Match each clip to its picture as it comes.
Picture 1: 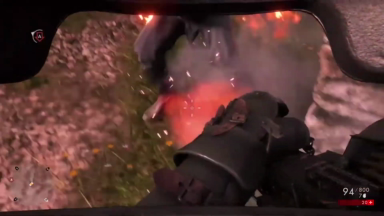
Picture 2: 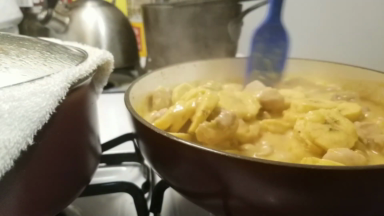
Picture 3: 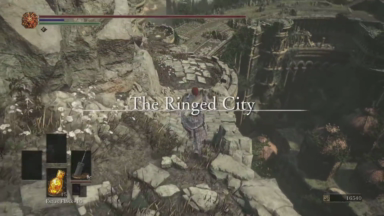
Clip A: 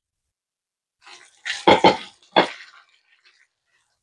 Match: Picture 2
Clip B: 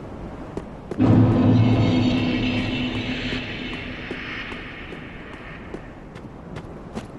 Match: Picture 3